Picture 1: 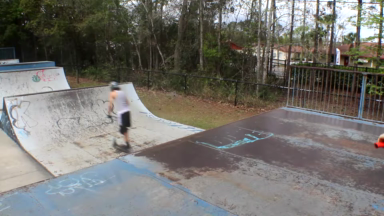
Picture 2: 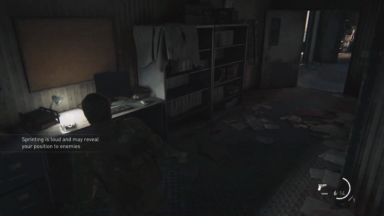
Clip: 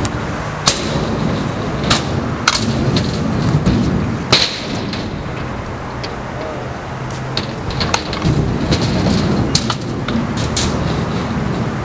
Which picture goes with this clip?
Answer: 1